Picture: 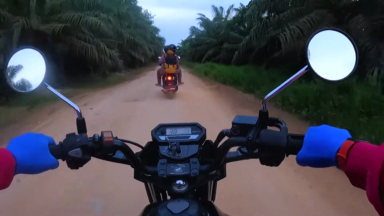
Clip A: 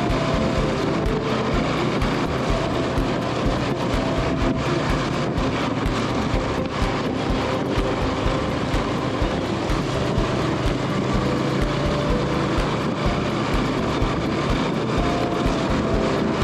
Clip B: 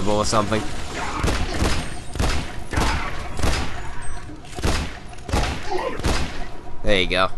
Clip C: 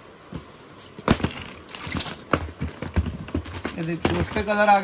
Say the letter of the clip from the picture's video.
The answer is A